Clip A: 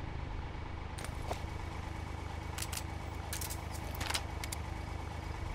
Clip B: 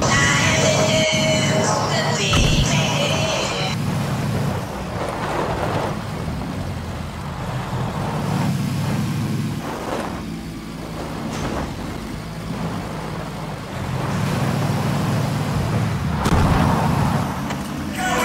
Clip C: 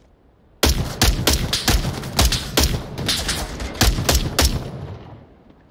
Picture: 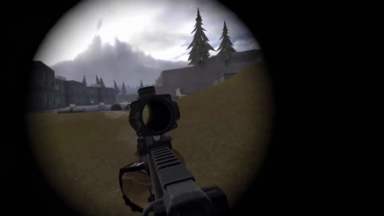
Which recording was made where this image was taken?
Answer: C